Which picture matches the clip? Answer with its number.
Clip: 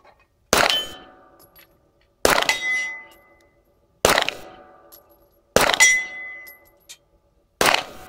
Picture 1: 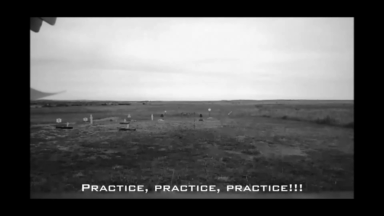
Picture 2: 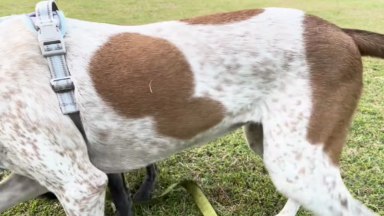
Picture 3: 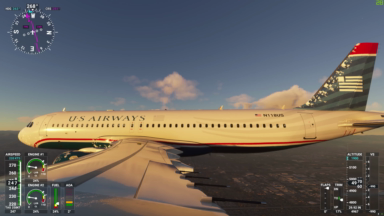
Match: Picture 1